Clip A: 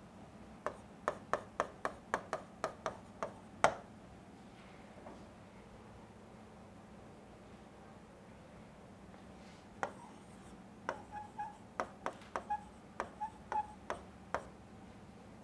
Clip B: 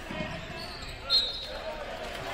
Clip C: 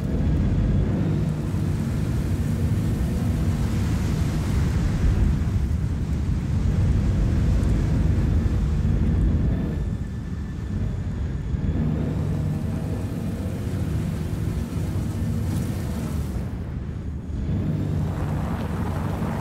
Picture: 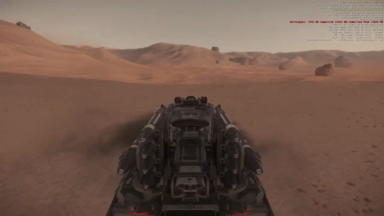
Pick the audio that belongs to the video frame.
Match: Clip C